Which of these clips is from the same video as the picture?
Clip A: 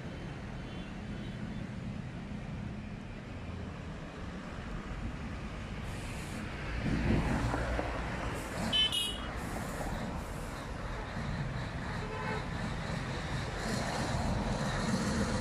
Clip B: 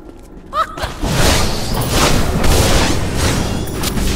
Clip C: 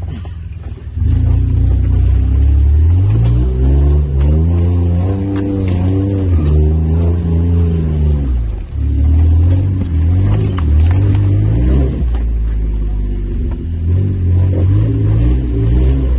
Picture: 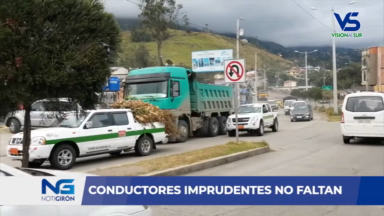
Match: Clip A